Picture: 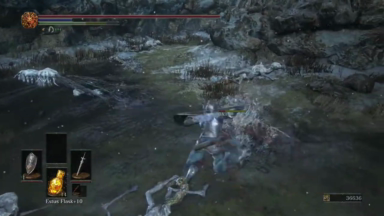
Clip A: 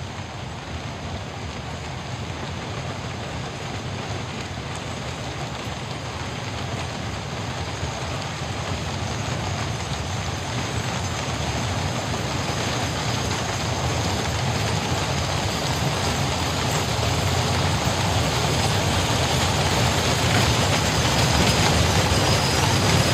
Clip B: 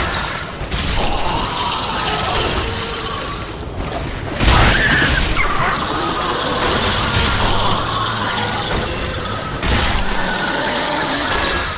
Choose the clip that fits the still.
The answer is B